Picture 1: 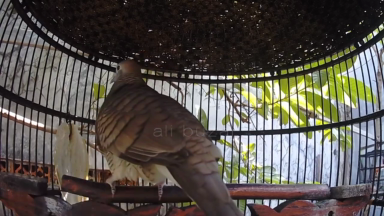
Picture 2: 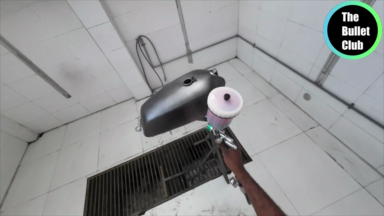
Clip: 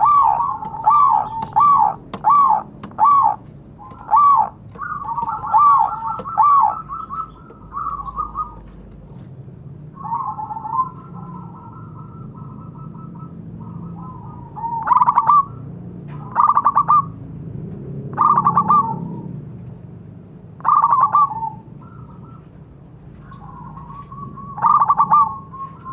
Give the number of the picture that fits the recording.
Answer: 1